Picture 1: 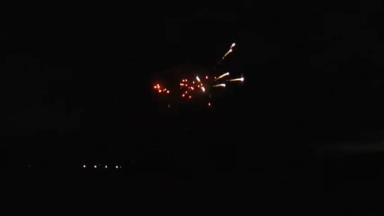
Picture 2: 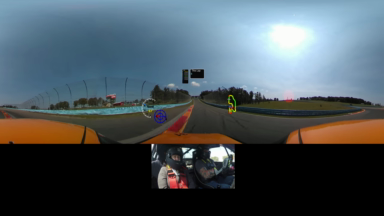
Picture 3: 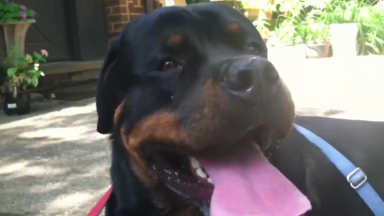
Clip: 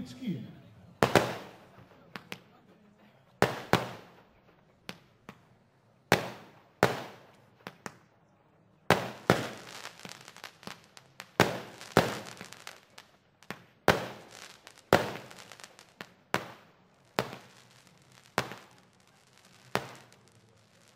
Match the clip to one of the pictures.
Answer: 1